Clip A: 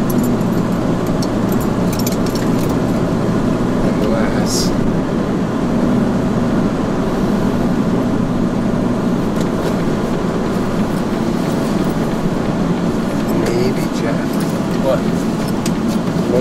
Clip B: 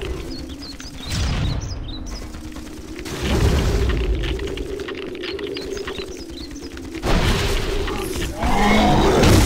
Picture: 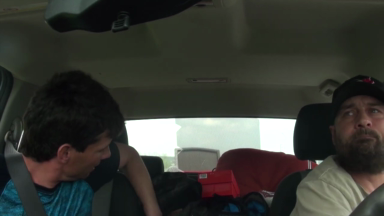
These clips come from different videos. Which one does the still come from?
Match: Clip A